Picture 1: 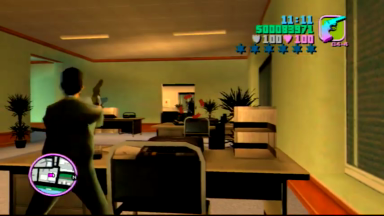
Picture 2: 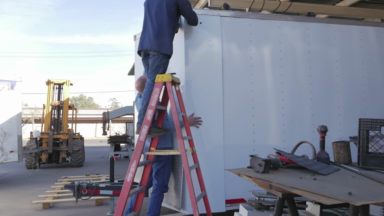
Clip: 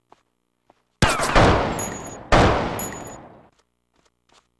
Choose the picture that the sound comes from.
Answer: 1